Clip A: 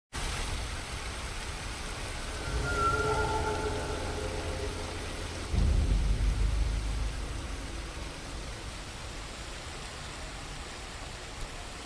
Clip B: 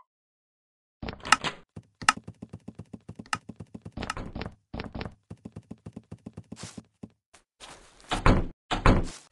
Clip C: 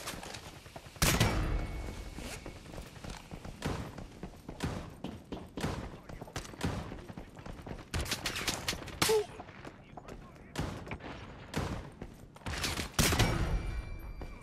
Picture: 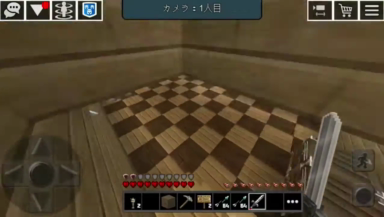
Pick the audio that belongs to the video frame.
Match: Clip B